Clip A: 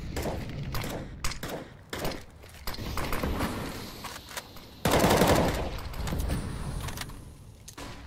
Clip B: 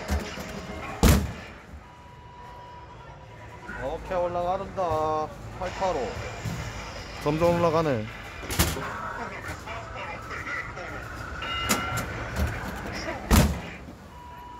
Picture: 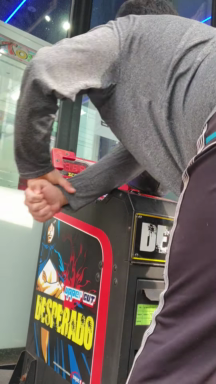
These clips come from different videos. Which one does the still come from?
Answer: B